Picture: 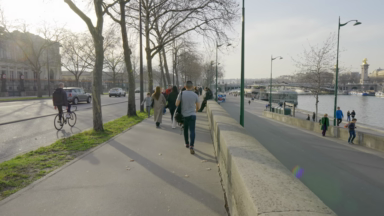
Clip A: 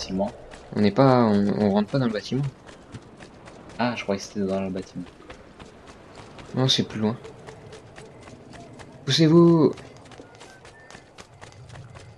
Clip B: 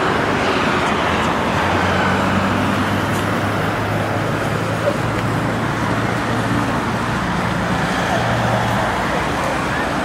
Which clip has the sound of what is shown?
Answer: B